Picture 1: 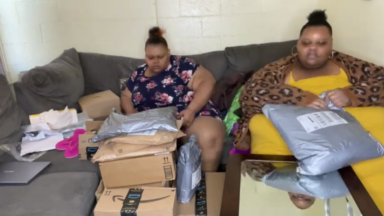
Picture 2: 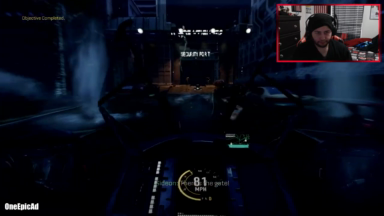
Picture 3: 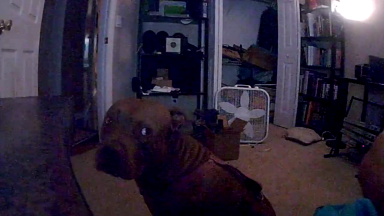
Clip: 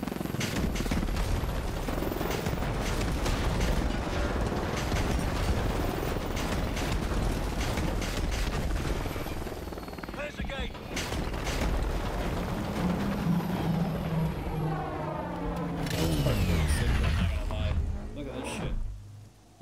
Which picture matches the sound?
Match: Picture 2